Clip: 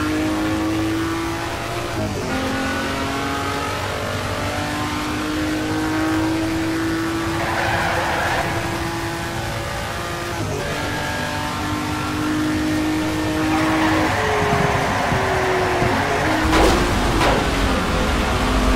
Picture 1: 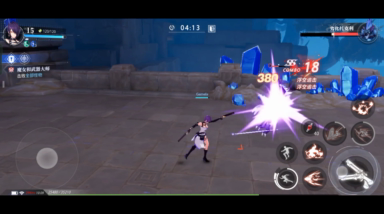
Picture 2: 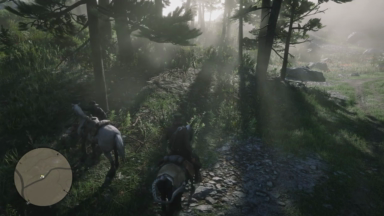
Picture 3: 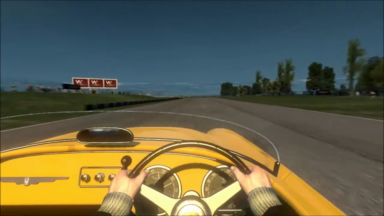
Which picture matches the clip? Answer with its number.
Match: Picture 3